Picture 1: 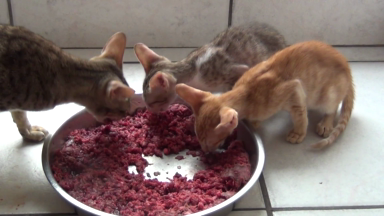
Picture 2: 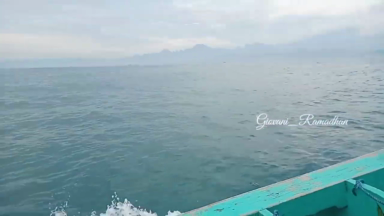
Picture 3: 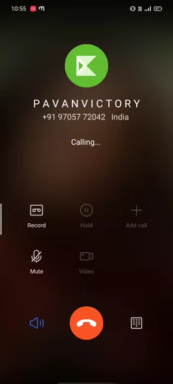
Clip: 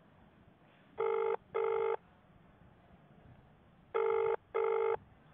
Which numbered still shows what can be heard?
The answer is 3